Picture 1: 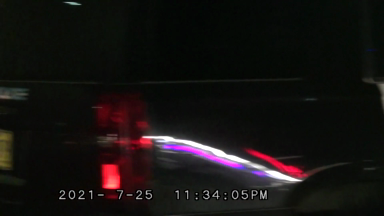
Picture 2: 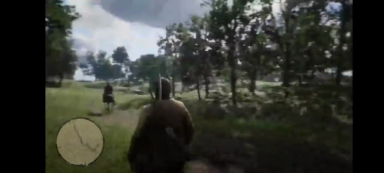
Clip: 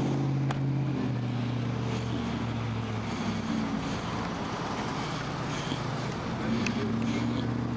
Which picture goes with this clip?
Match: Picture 1